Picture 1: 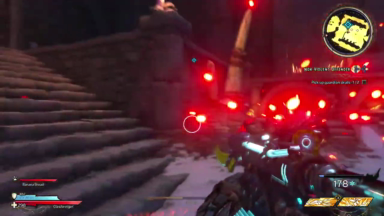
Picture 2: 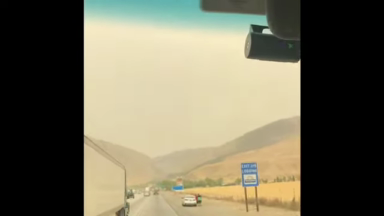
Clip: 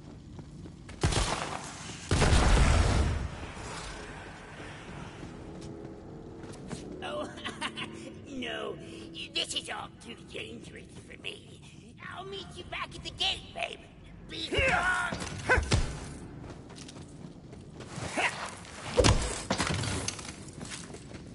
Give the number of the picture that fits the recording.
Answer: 1